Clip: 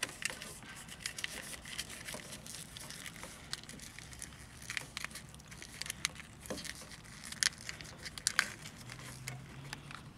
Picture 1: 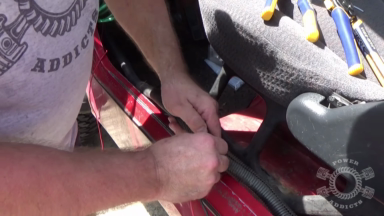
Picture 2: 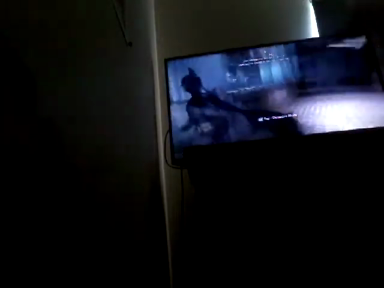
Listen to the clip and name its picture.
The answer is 1